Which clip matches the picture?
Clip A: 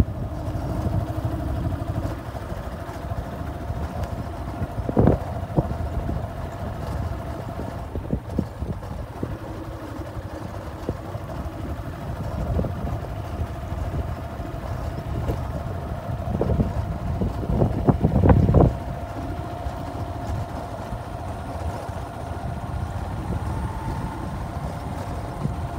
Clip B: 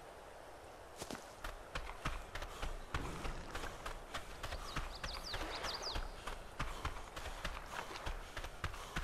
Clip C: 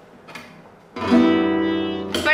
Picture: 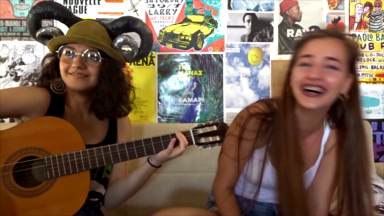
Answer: C